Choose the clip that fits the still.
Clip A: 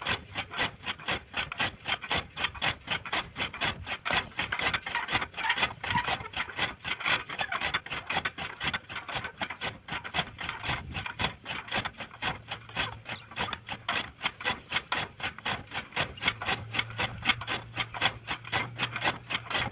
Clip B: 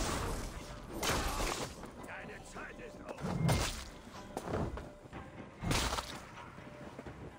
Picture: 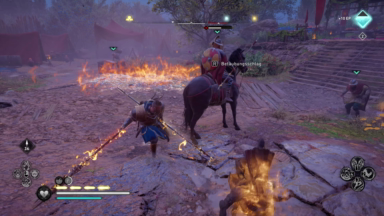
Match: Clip B